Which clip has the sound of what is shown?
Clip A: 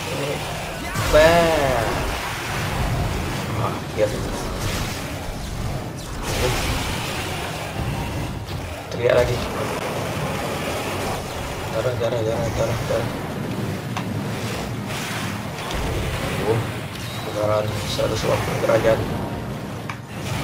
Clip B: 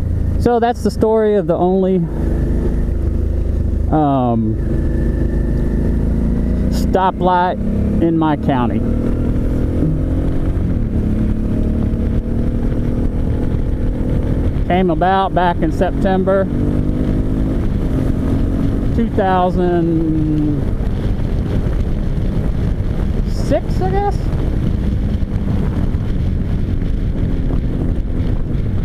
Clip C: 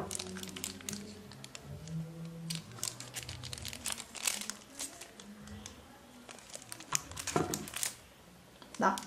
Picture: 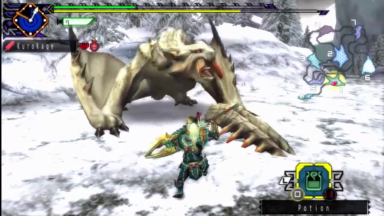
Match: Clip A